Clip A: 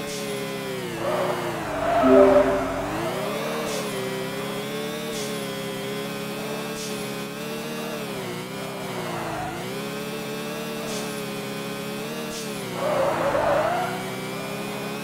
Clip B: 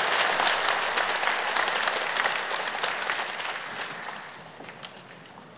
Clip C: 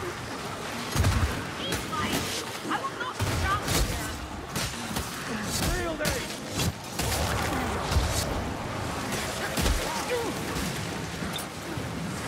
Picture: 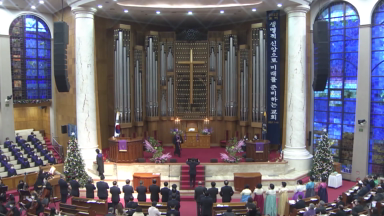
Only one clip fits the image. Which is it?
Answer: B